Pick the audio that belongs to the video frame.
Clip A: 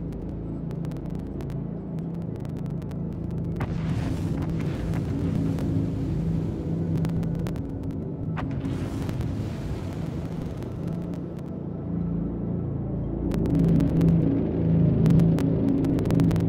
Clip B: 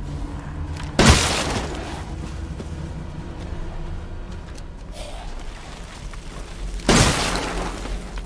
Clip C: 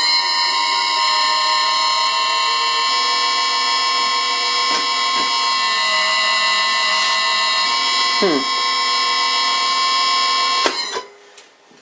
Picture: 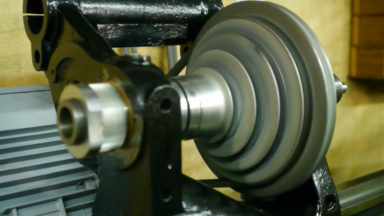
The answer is C